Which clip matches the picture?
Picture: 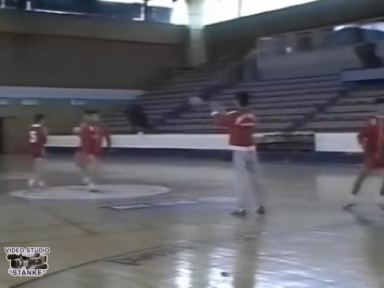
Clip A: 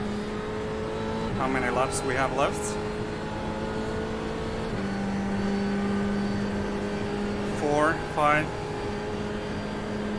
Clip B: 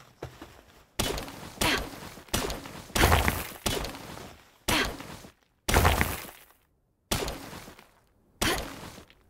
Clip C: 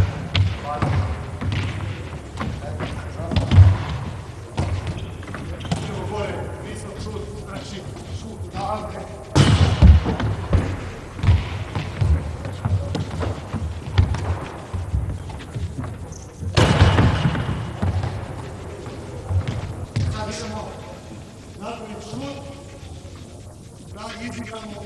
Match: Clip C